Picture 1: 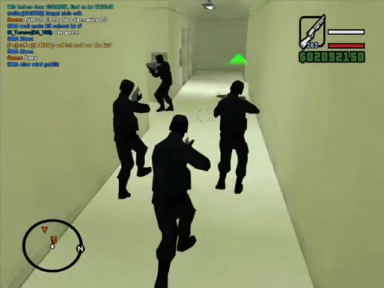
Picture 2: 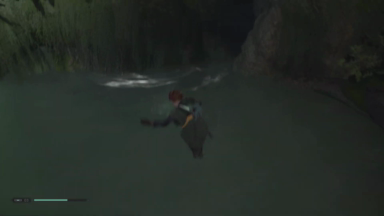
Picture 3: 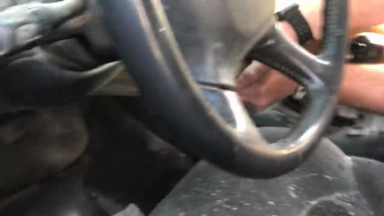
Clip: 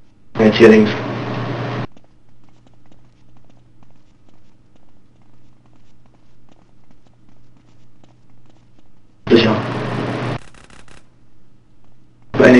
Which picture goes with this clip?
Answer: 1